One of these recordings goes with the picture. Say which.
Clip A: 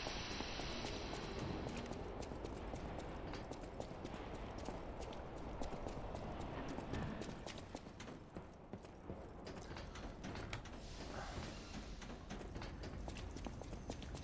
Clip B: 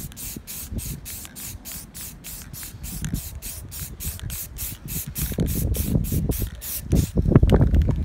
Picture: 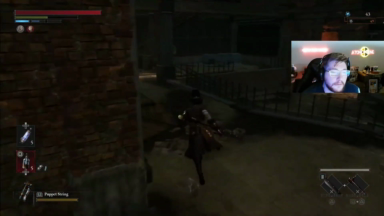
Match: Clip A